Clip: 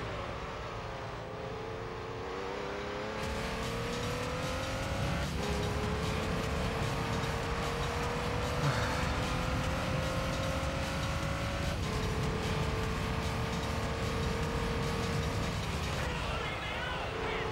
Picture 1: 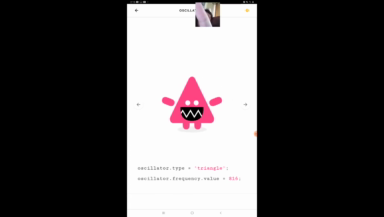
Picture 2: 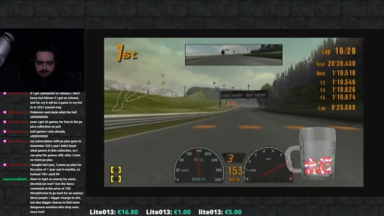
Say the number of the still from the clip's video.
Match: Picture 2